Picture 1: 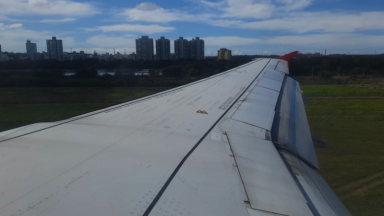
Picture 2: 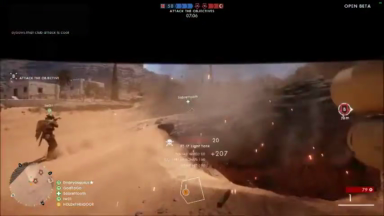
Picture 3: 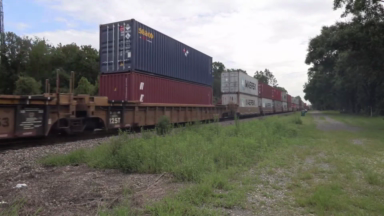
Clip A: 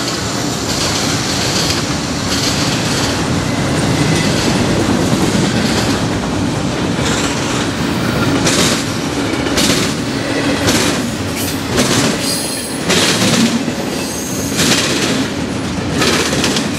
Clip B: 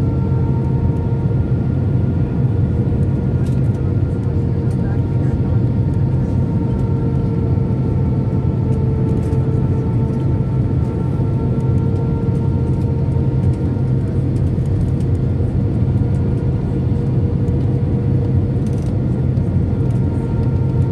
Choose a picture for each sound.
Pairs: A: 3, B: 1